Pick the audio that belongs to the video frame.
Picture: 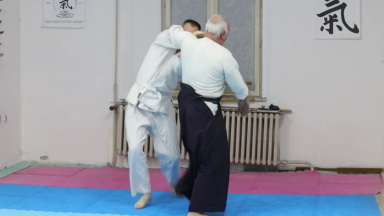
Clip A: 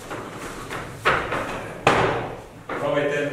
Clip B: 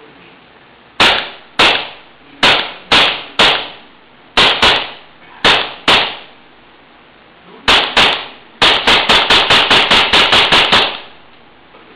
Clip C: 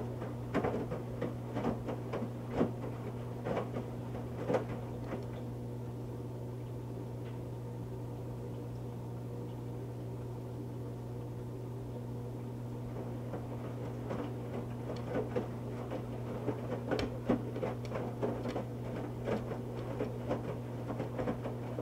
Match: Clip A